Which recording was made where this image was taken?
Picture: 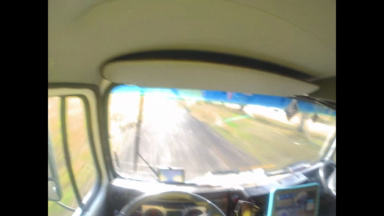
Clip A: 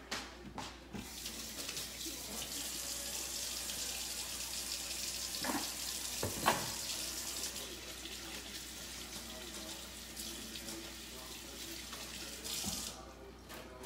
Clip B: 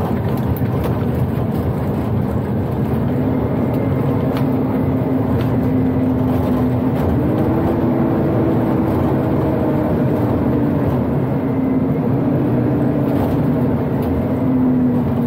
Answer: B